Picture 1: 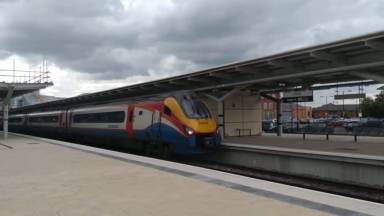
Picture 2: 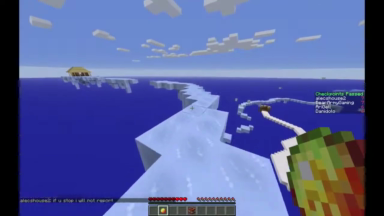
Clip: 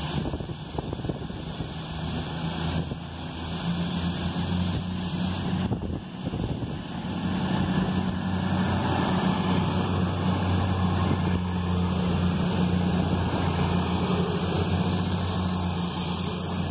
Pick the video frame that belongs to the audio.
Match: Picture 1